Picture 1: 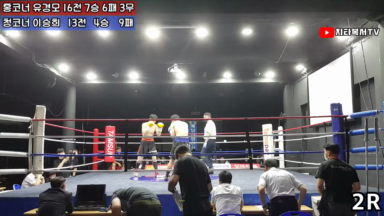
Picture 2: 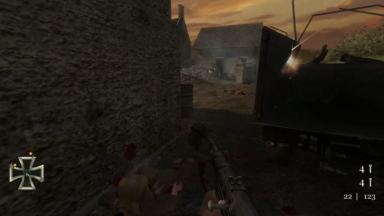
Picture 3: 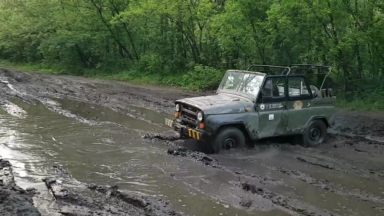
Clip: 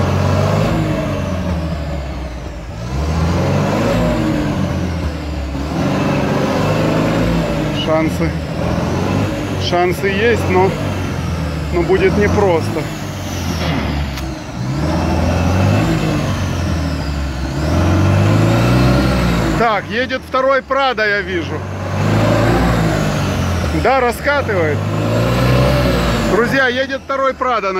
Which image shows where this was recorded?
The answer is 3